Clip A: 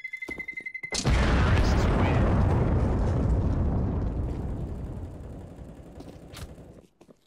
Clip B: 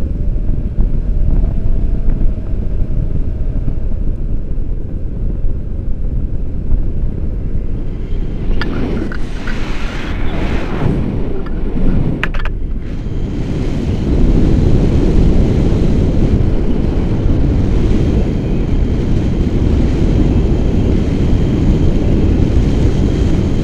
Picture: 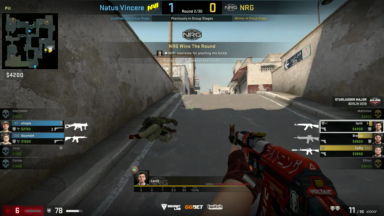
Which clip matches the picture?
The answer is A